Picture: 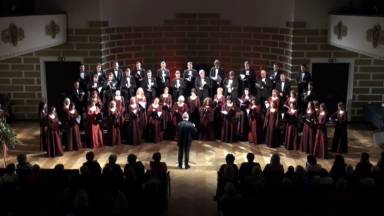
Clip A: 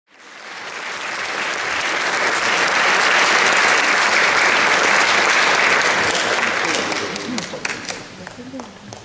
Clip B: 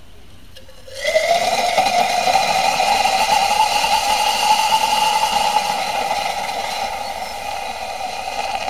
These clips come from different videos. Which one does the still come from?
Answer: A